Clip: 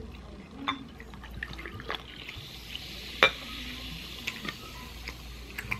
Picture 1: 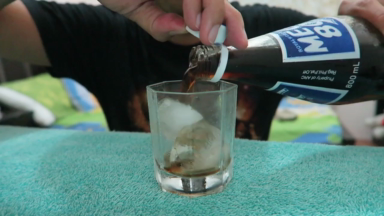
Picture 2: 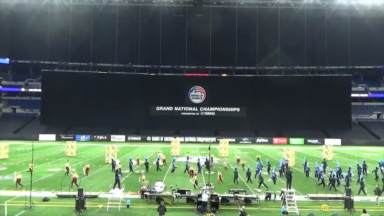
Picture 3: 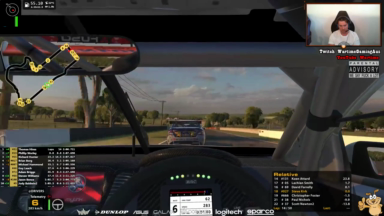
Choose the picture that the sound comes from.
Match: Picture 1